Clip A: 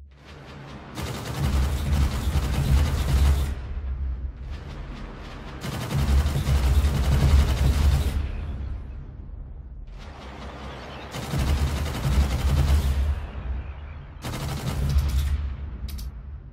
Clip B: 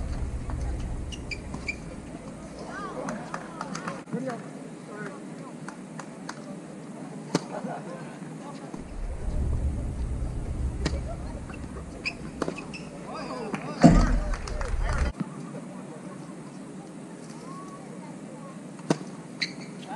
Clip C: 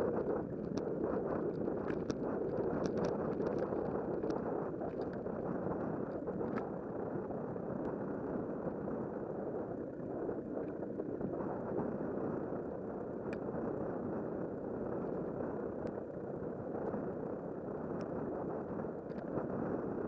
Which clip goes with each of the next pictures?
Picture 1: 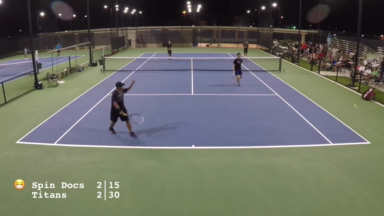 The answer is B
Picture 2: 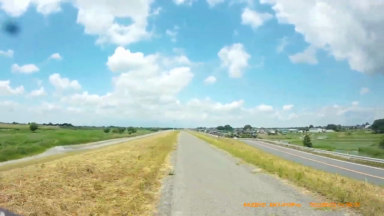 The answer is C